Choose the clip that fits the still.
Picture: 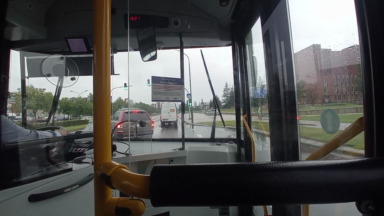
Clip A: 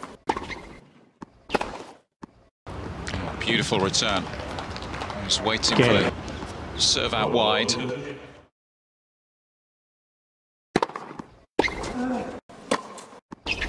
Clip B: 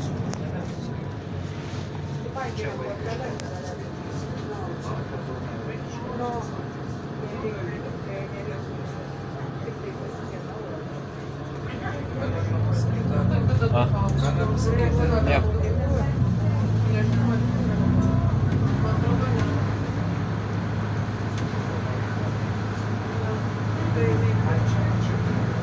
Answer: B